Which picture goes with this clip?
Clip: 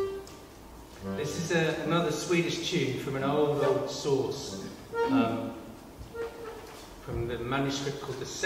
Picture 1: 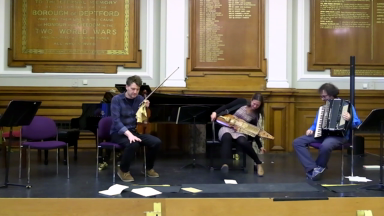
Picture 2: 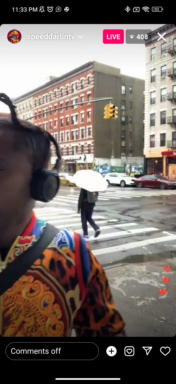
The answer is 1